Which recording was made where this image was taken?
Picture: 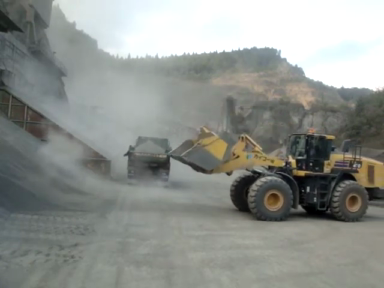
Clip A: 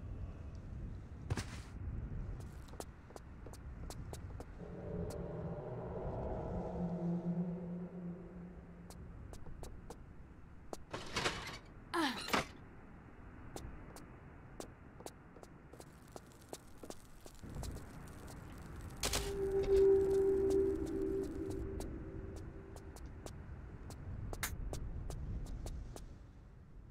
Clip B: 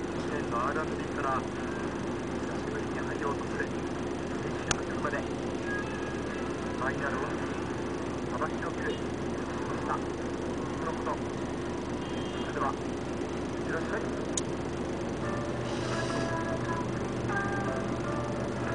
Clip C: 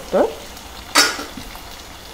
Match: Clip B